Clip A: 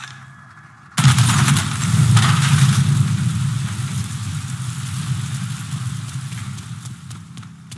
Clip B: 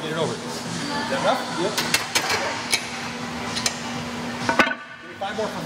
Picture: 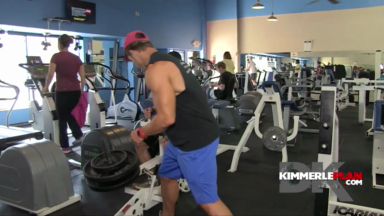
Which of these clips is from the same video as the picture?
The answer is B